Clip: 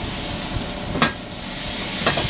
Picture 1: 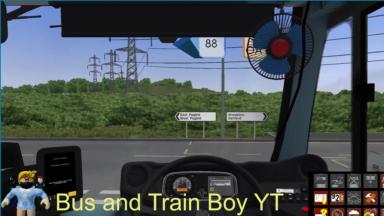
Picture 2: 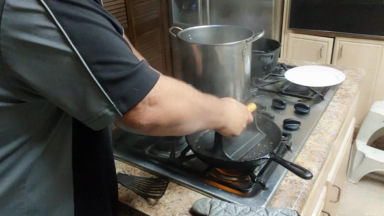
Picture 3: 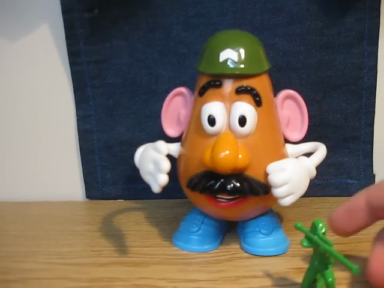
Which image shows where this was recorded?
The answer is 2